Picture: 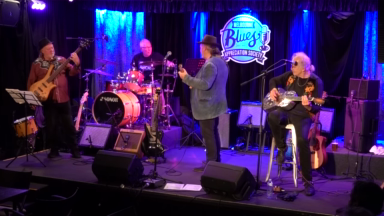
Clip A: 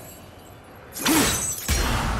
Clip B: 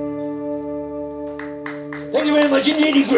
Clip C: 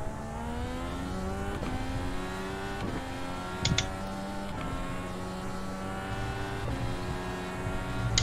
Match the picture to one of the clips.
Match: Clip B